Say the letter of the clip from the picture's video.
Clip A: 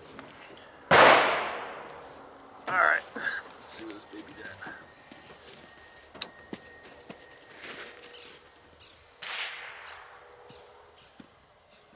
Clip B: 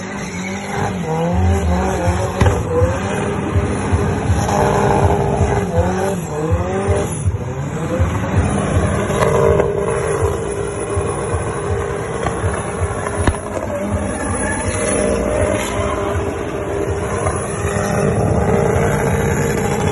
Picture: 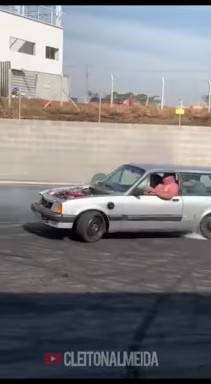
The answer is B